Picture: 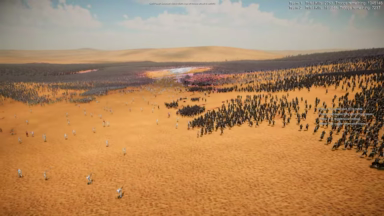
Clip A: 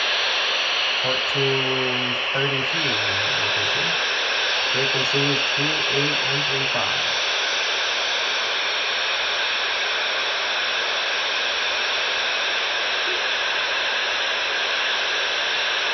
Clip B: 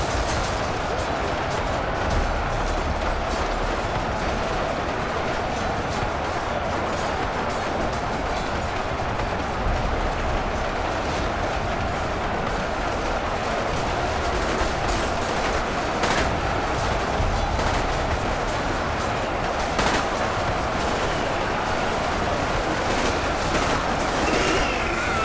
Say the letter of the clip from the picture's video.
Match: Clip B